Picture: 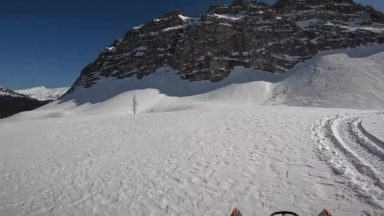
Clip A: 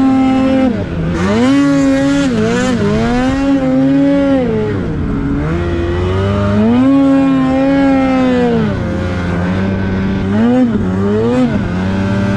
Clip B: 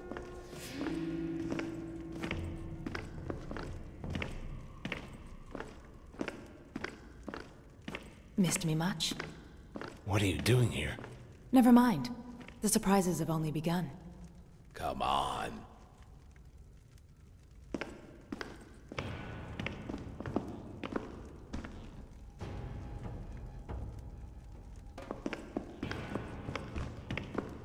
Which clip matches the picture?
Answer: A